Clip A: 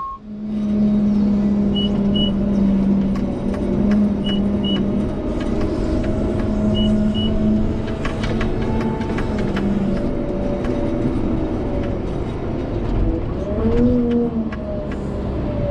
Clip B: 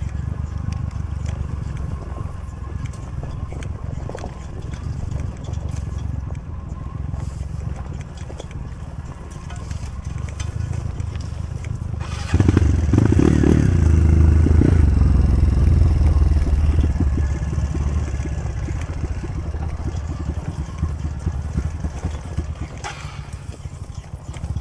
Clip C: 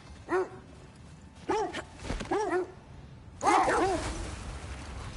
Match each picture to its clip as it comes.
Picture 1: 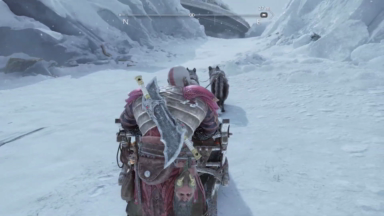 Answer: C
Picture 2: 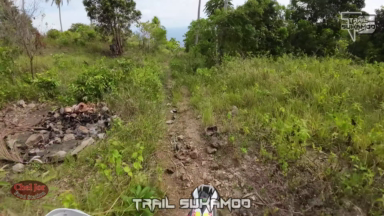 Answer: B